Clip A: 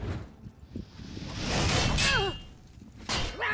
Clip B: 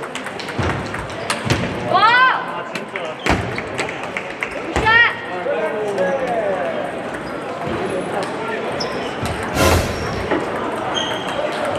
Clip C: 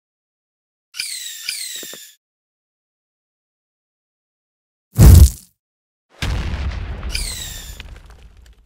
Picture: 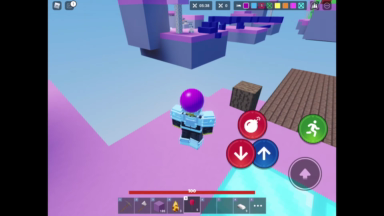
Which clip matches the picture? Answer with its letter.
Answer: C